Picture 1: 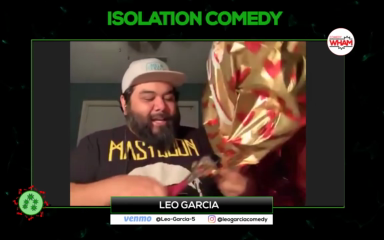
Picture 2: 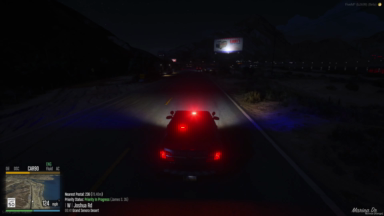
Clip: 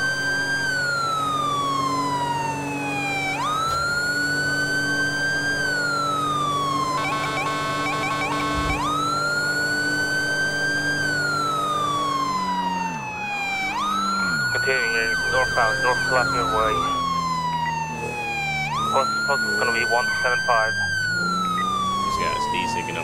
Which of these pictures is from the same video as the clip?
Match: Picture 2